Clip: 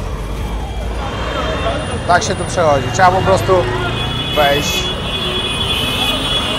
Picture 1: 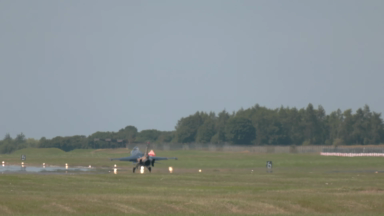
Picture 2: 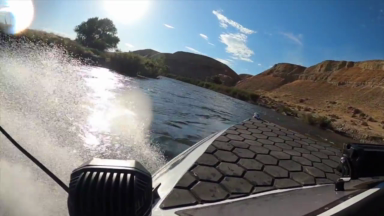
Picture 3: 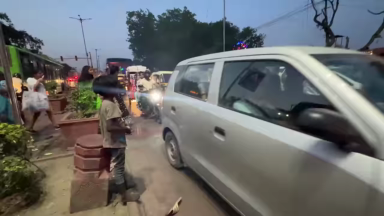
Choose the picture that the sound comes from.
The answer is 3